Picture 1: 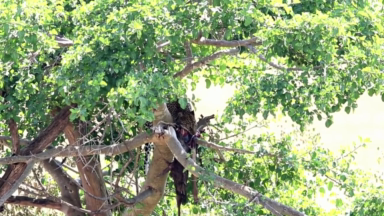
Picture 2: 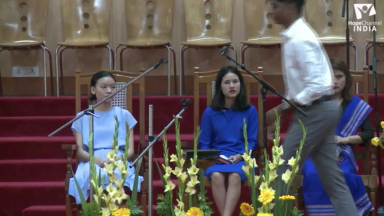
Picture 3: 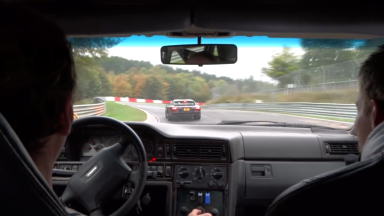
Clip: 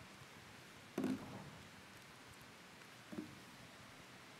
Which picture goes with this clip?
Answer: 2